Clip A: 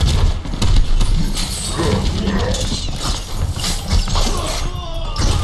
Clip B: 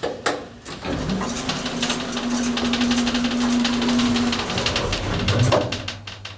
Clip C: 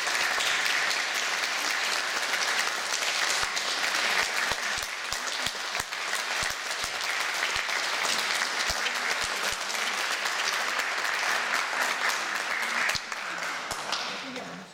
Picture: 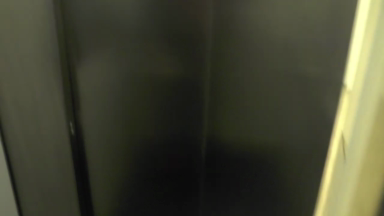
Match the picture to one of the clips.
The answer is B